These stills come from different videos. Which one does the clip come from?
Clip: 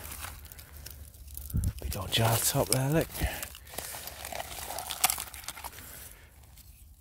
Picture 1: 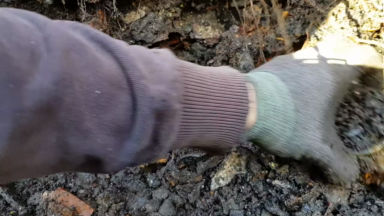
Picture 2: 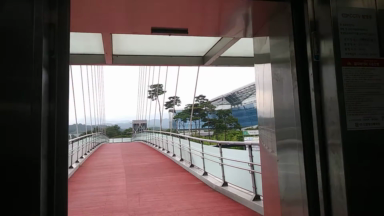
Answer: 1